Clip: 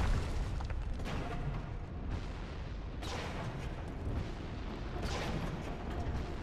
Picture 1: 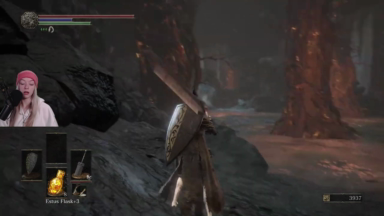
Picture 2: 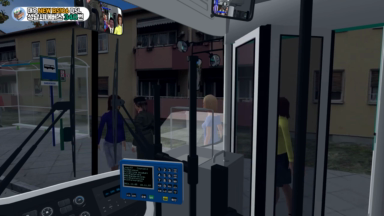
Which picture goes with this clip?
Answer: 1